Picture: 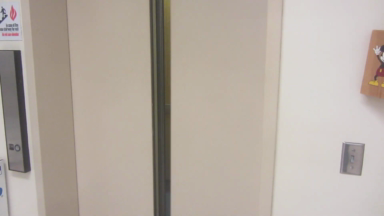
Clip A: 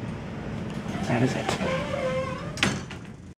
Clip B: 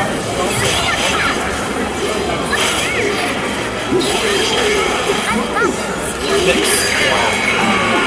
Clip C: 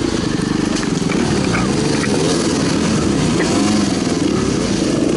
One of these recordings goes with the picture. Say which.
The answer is A